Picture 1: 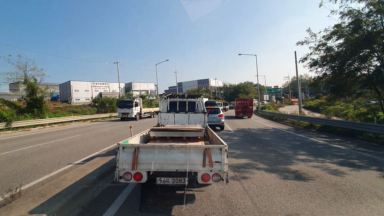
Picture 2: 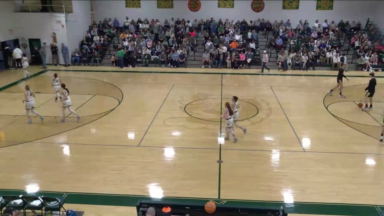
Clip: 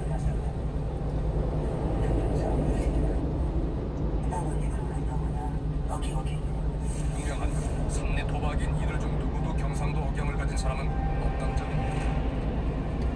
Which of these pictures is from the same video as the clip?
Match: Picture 1